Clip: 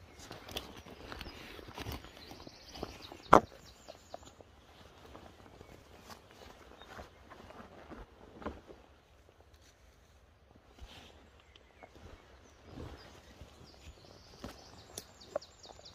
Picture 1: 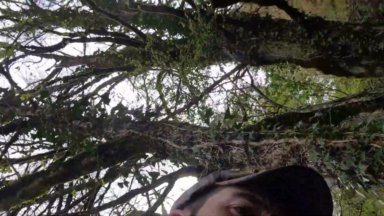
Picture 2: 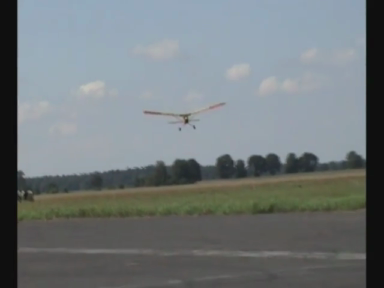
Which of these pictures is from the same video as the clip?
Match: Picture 1